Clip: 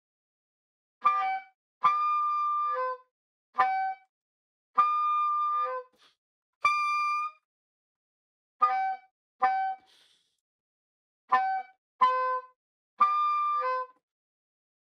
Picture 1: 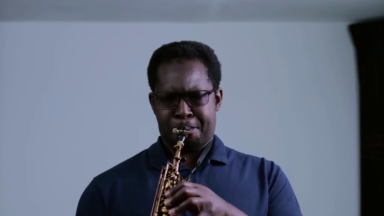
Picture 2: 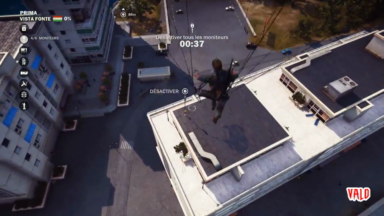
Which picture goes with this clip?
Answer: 1